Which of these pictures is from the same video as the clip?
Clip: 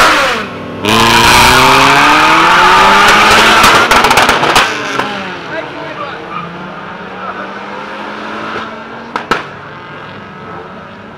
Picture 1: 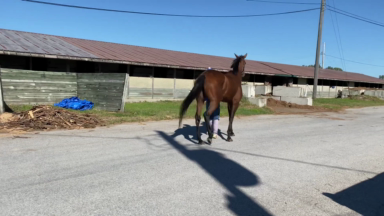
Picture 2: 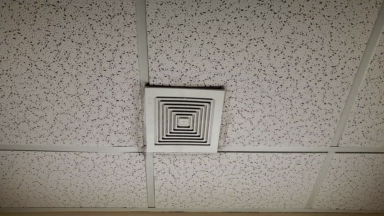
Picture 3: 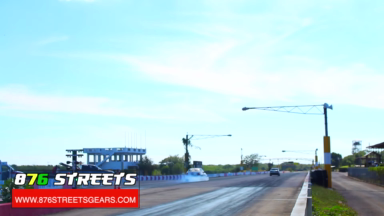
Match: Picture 3